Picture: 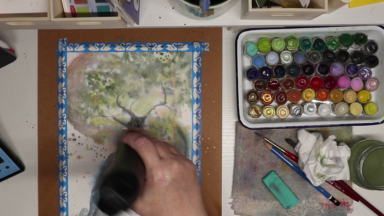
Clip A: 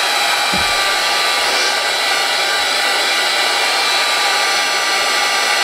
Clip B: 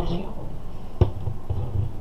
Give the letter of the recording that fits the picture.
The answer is A